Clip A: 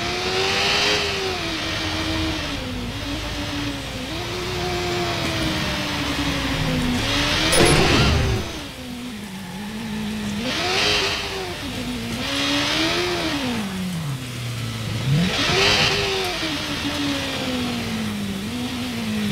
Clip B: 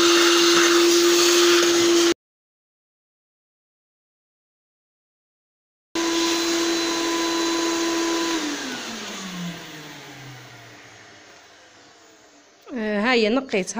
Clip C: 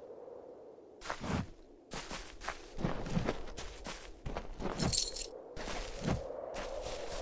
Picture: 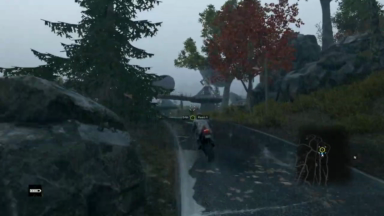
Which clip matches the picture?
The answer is A